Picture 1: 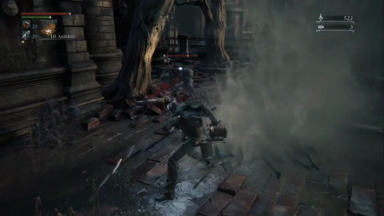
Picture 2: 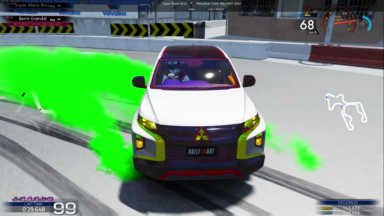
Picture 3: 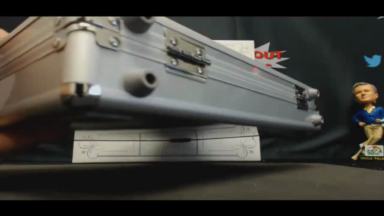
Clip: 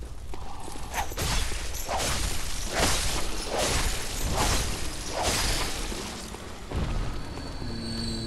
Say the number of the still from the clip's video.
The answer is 1